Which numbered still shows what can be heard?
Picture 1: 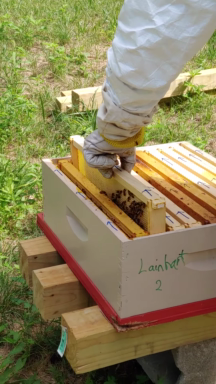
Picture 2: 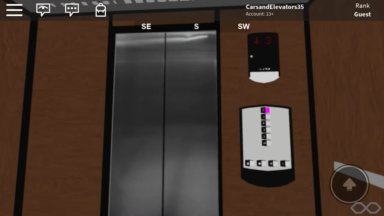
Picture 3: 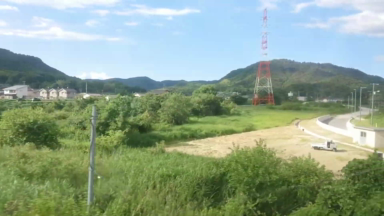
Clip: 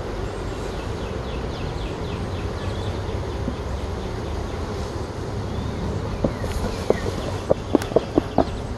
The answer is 1